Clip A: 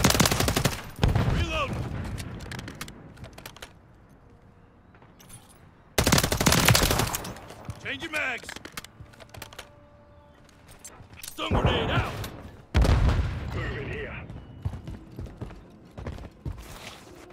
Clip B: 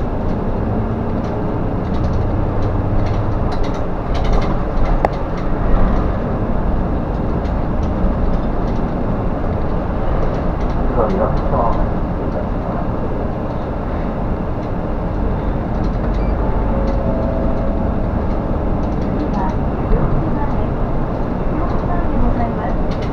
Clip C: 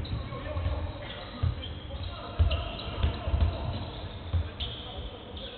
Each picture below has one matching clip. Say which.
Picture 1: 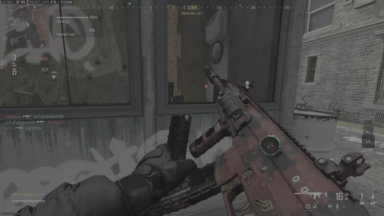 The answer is A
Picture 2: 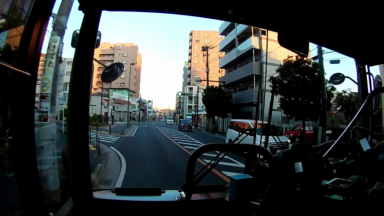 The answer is B